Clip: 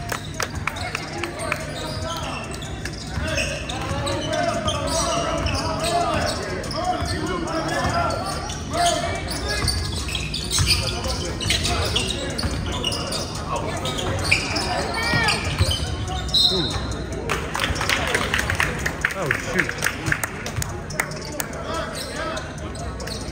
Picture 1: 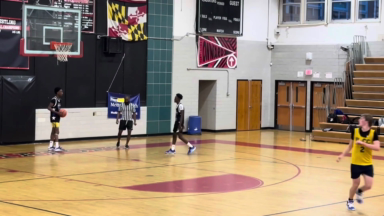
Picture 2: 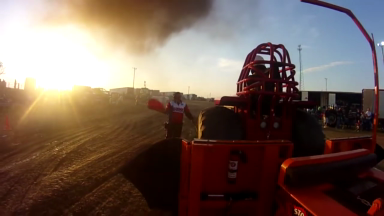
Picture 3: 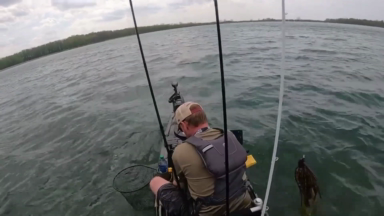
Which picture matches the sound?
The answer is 1